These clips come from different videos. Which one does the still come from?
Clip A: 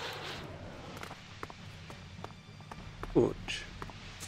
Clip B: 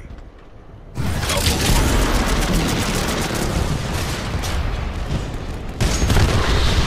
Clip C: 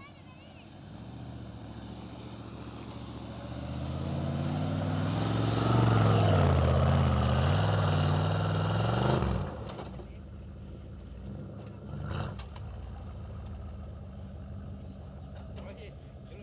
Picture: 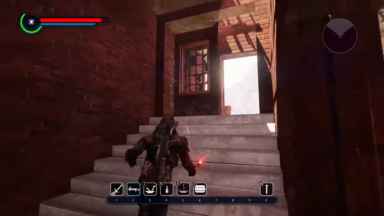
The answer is A